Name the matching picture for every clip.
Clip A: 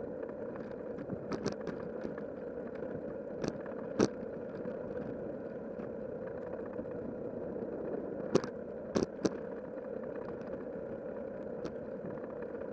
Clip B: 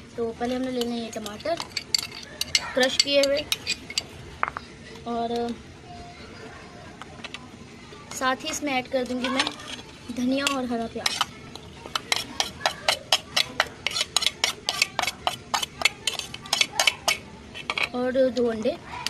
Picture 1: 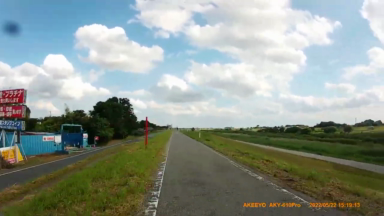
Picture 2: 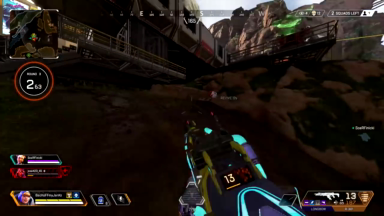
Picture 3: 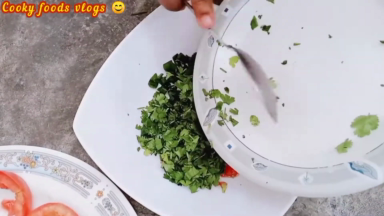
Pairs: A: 1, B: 3